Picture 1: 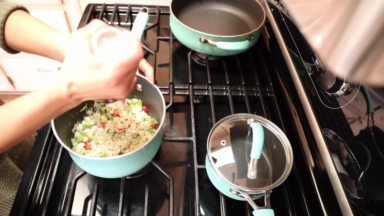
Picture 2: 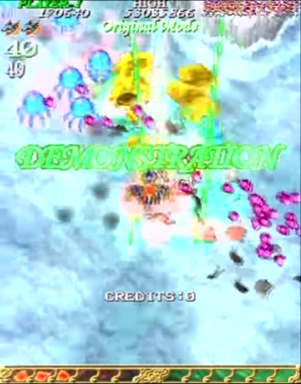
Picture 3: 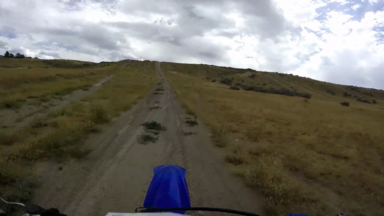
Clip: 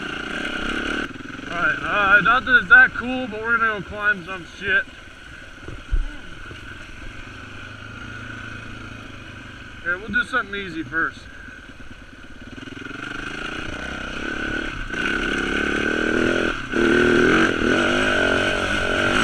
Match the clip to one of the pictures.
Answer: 3